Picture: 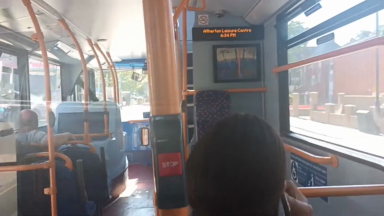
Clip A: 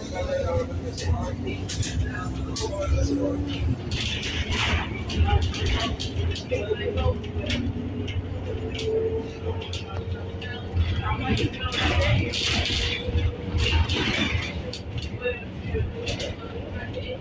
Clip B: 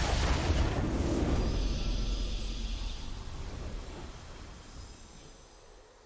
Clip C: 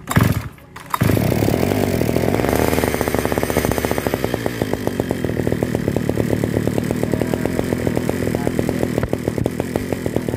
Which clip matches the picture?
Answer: A